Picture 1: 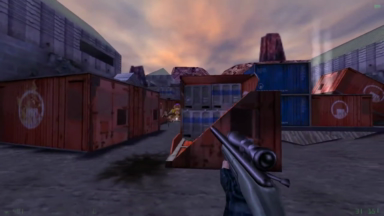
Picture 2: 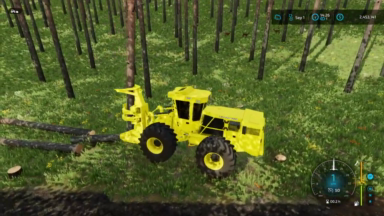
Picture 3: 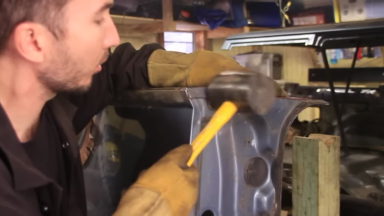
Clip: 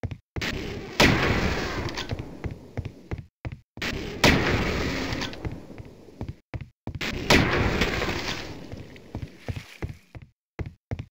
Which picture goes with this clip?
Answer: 1